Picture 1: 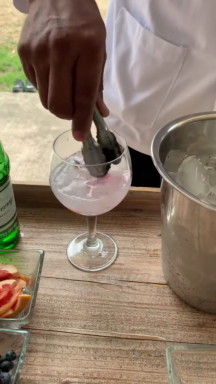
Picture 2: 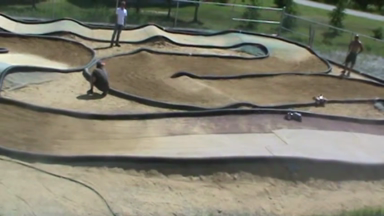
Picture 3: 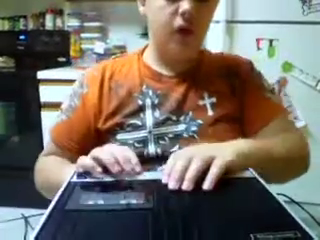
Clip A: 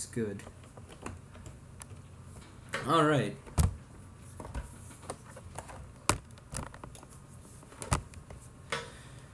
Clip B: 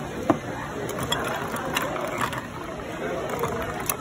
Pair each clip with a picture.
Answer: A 3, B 1